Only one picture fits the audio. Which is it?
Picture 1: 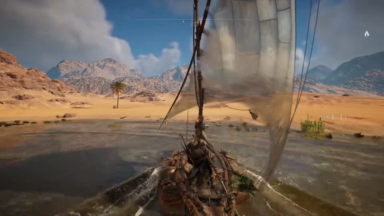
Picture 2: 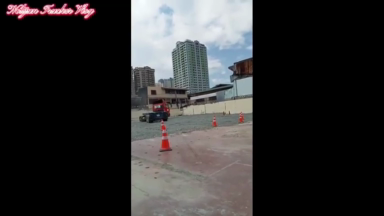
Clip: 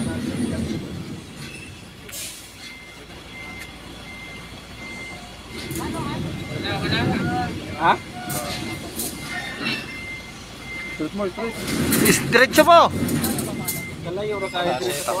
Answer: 2